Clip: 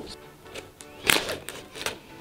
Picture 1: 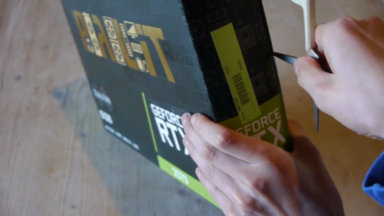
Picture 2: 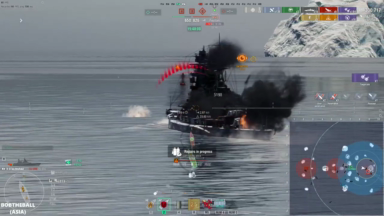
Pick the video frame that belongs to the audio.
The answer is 1